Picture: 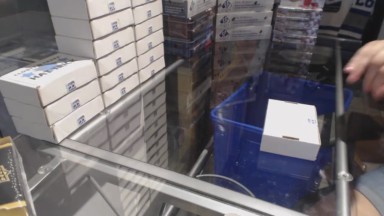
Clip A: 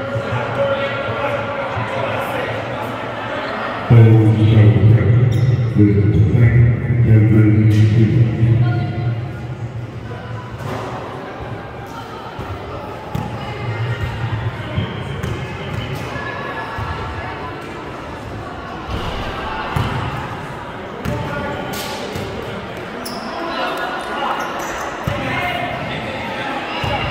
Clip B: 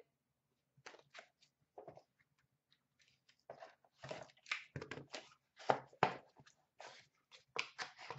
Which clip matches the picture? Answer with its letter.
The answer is B